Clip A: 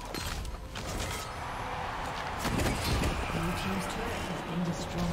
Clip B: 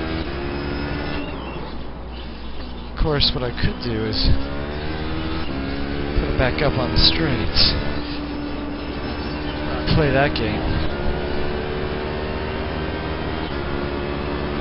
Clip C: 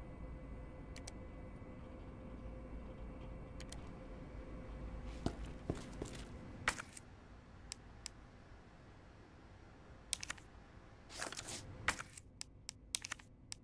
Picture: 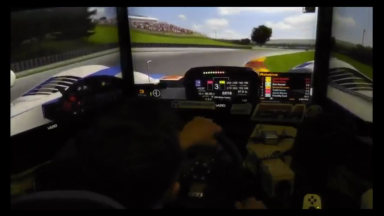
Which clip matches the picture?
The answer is B